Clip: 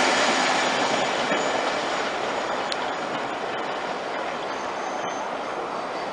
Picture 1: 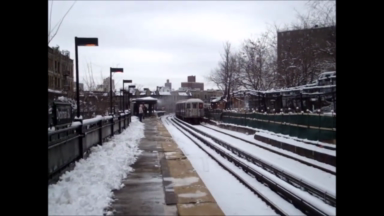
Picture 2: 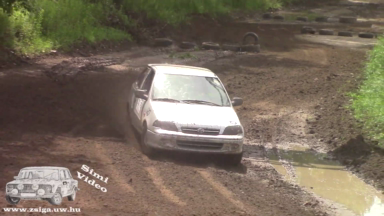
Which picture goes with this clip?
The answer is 1